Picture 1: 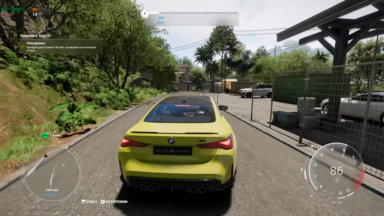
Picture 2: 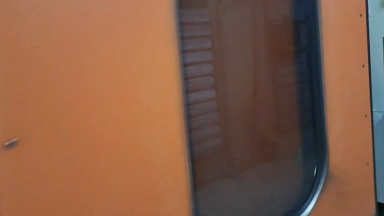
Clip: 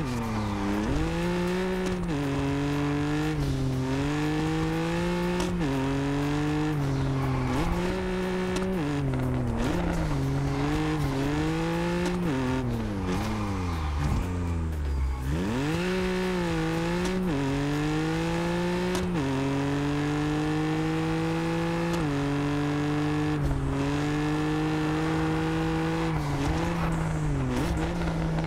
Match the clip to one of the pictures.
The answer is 1